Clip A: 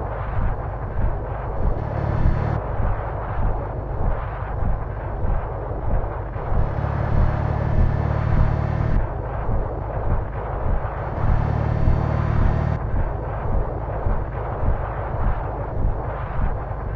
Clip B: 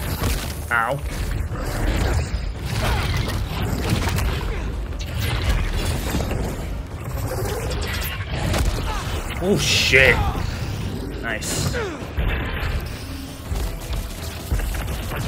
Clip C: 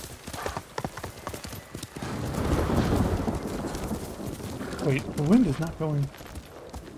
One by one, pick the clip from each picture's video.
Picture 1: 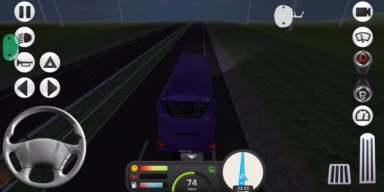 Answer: A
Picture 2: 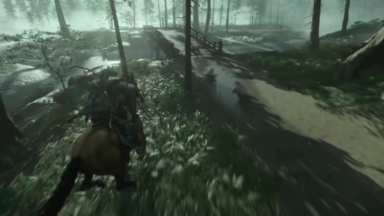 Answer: C